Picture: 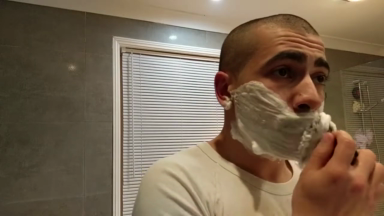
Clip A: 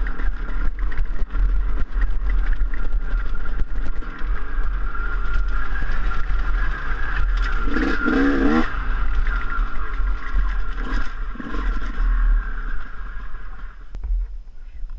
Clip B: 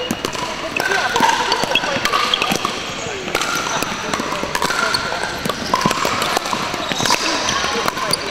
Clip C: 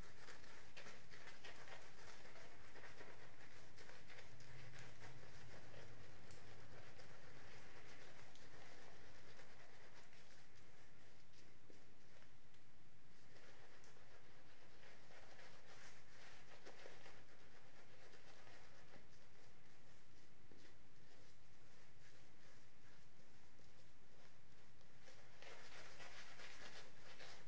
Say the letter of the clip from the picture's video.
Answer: C